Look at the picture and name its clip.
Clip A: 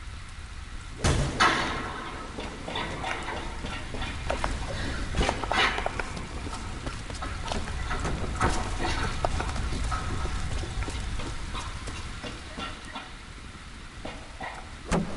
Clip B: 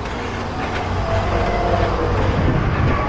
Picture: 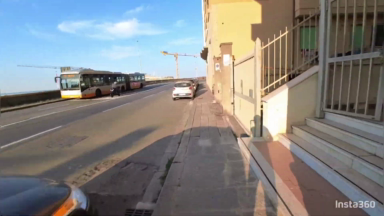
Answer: B